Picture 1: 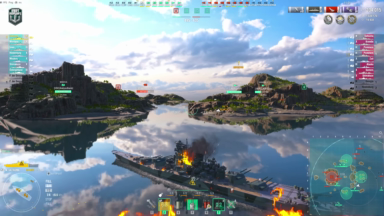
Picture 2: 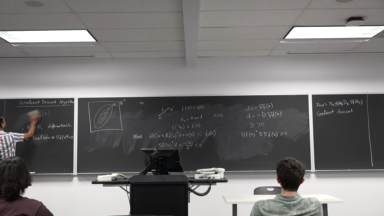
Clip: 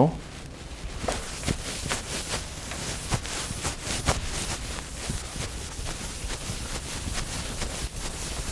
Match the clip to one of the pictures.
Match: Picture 2